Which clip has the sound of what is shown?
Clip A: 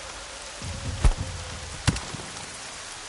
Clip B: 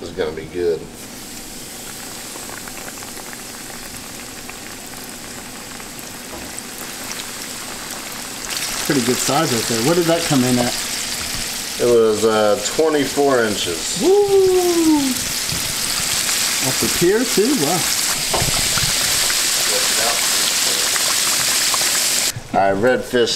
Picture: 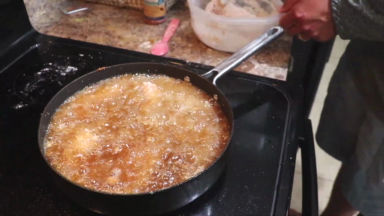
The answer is B